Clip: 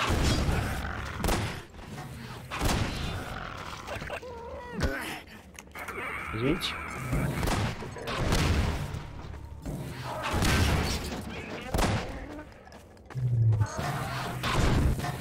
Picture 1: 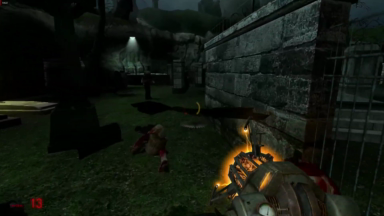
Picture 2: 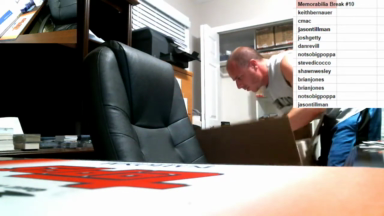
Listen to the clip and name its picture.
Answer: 1